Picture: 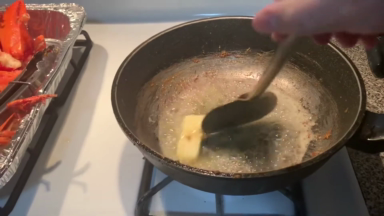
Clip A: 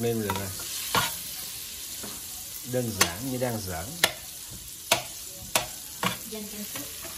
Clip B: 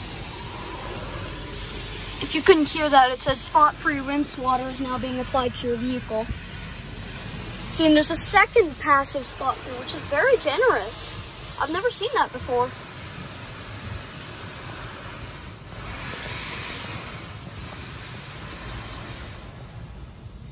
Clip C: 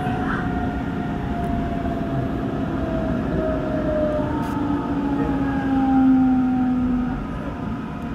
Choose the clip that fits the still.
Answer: A